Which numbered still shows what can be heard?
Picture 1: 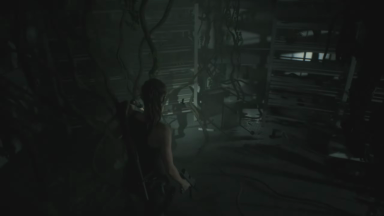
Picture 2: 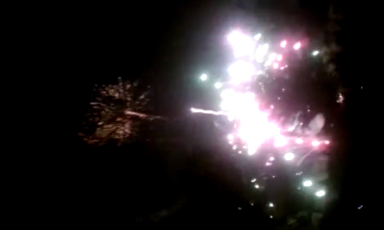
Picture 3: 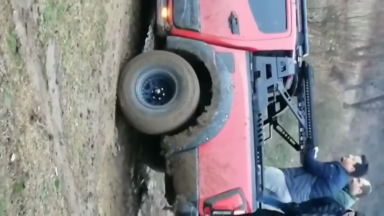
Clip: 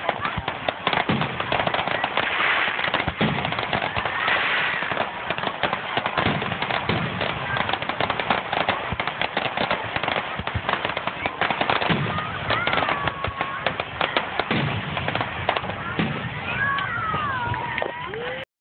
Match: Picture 2